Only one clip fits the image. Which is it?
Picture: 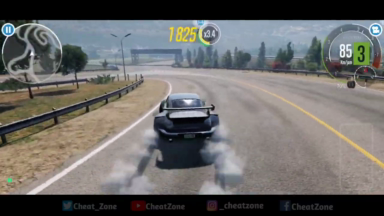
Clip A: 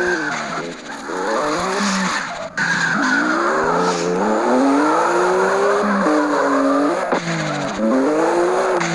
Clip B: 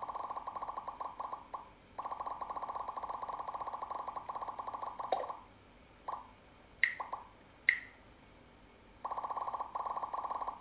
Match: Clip A